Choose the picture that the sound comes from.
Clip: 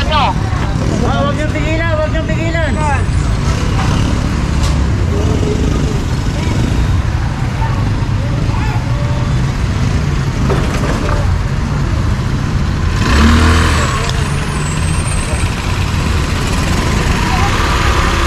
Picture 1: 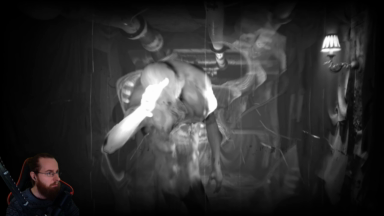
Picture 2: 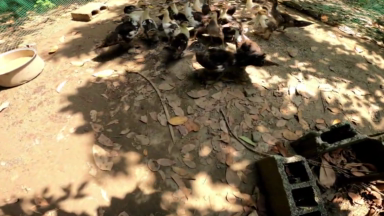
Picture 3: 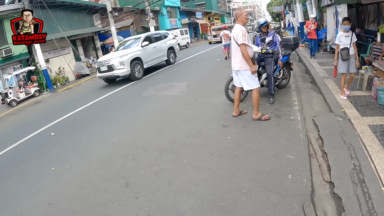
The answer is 3